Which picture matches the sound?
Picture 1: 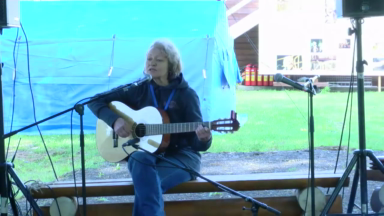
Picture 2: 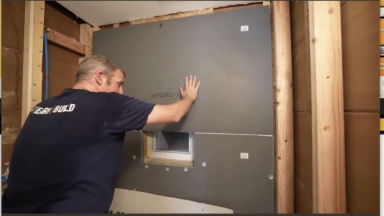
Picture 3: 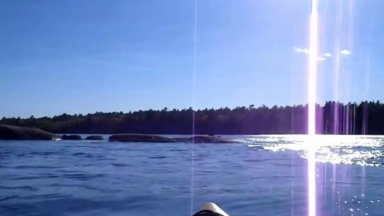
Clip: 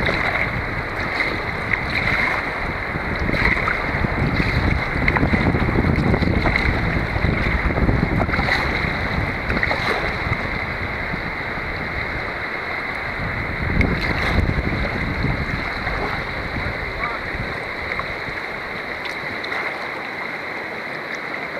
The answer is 3